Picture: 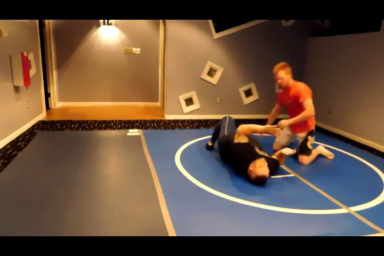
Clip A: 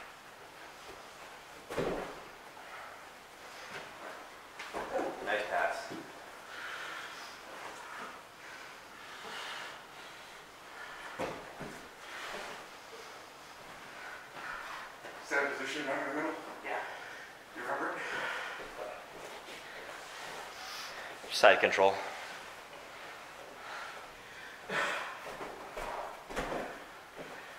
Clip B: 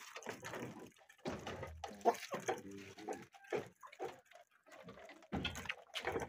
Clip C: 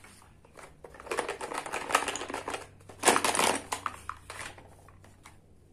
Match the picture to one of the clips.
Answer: A